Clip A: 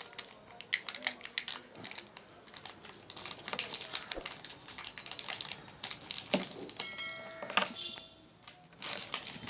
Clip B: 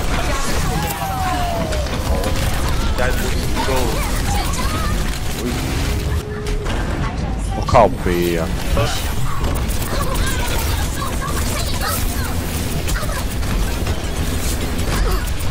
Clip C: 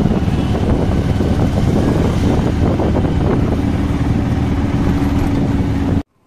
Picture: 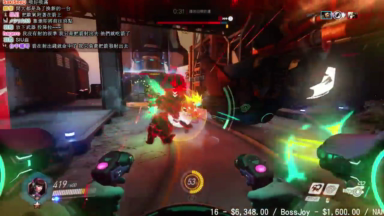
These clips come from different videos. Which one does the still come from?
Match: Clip B